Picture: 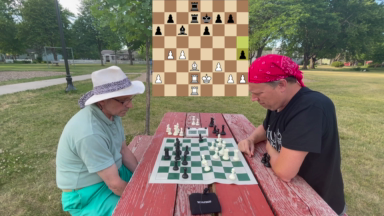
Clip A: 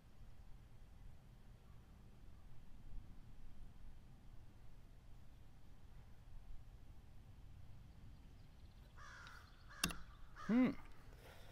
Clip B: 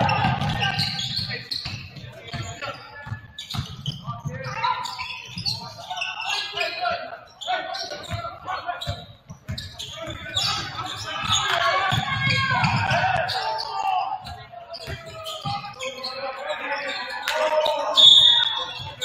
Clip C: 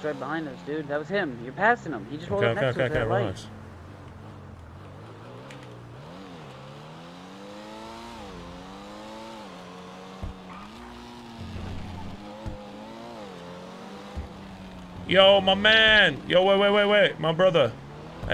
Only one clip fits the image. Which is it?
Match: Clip A